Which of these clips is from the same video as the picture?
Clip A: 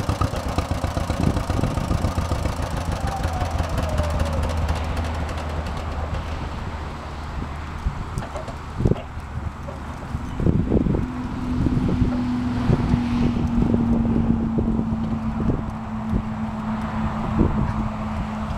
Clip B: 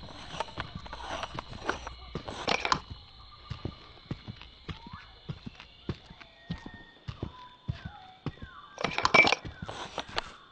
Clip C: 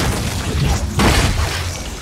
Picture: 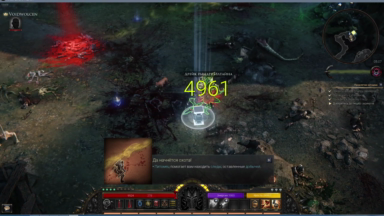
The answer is C